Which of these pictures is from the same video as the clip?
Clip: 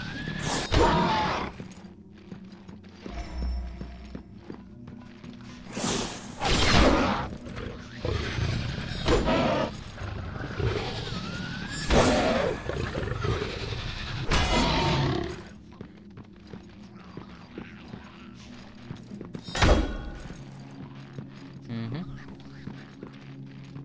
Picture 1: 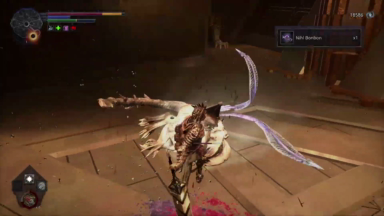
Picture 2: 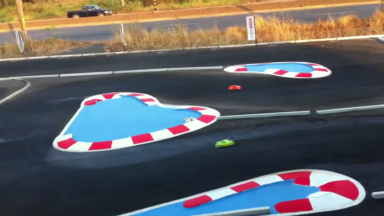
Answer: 1